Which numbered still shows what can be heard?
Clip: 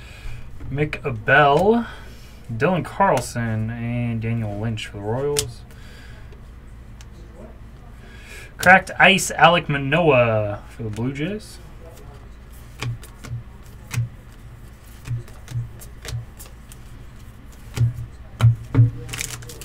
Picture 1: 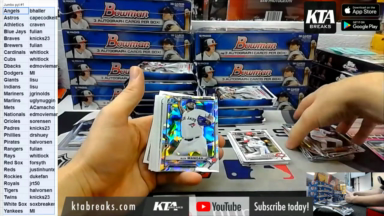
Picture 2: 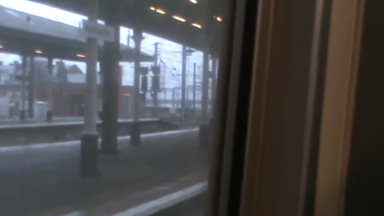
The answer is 1